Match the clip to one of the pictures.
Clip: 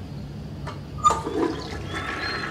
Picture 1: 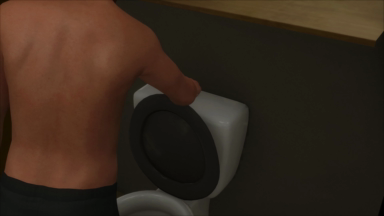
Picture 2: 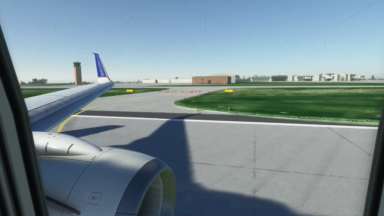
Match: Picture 1